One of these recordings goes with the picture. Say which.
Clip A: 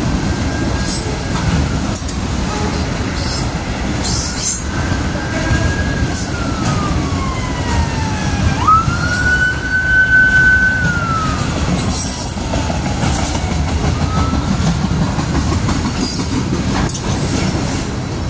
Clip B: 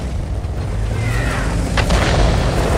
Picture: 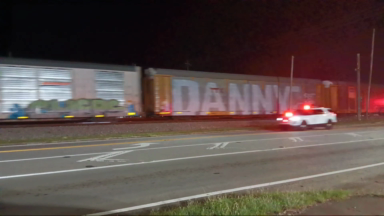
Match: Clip A